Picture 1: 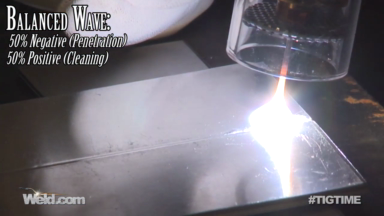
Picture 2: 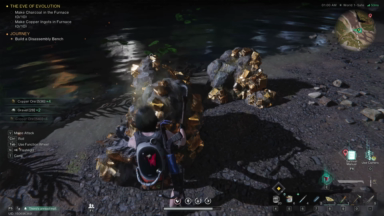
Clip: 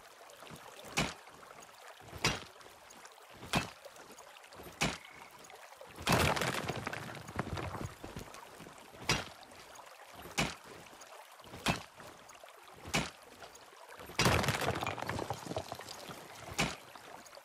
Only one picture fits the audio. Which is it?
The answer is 2